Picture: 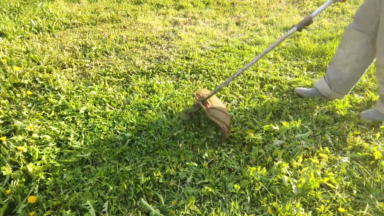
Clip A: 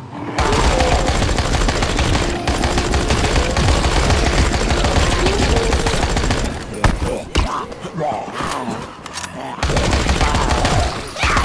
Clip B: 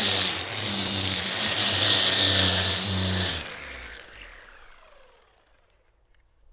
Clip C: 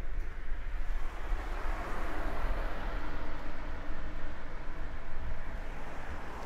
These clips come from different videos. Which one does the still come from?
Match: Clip B